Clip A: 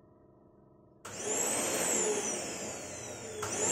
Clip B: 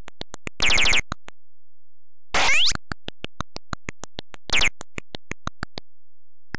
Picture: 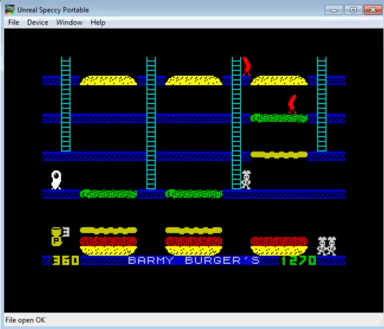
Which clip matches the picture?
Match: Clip B